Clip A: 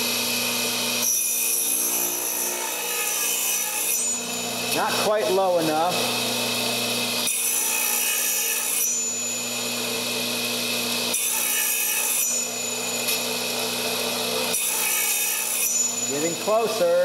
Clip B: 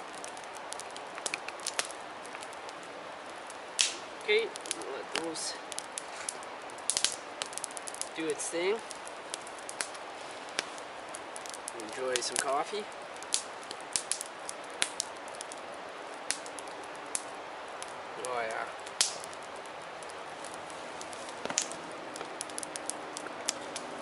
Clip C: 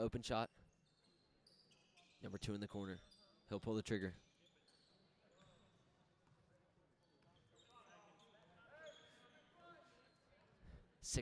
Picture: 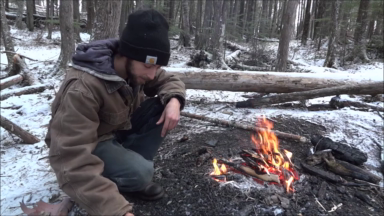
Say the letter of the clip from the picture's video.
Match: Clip B